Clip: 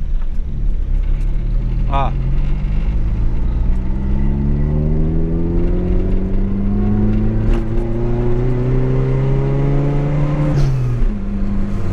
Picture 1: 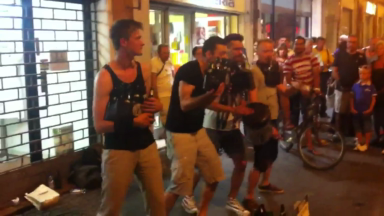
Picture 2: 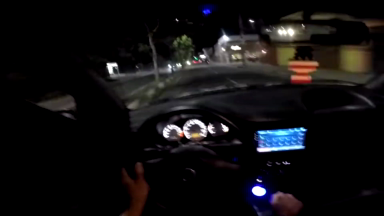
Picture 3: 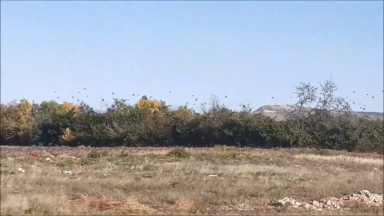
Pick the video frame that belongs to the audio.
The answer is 2